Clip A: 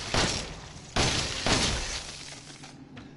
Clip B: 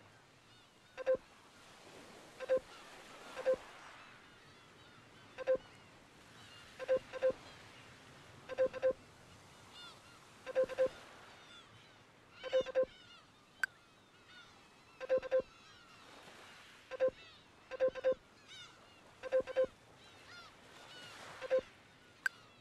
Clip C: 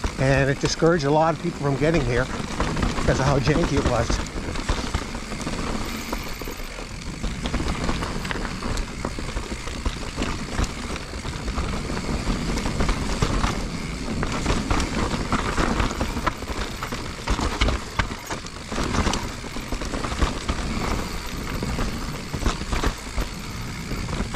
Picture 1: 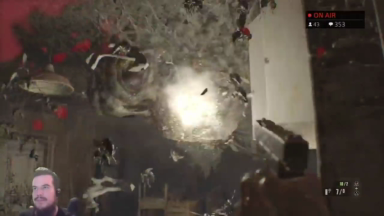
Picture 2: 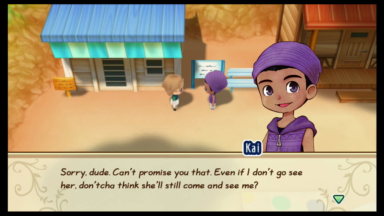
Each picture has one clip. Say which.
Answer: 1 A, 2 B